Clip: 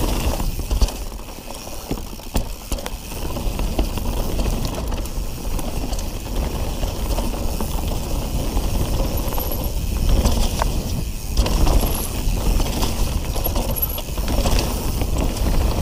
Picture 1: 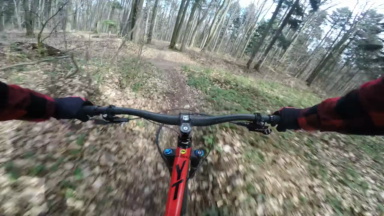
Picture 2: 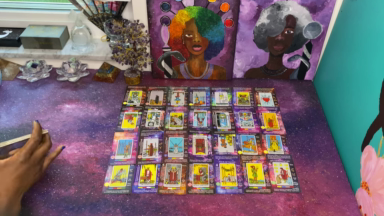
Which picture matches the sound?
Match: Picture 1